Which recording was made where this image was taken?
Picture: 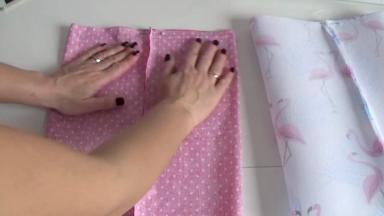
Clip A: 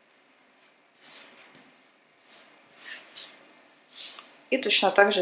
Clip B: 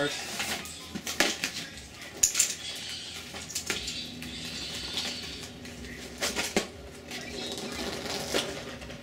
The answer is A